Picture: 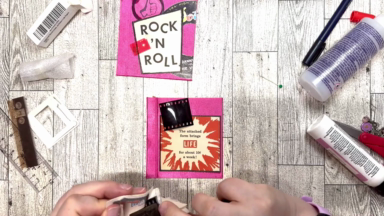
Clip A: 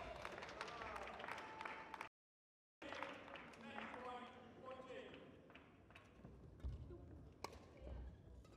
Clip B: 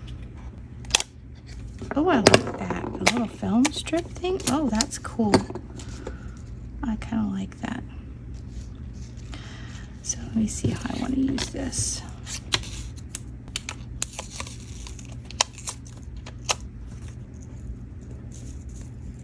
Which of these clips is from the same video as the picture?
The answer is B